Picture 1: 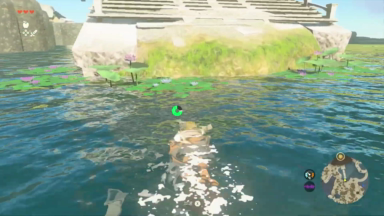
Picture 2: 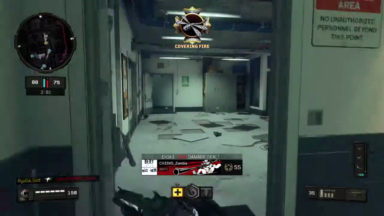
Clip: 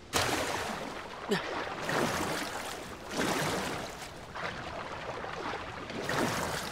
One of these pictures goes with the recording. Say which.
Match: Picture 1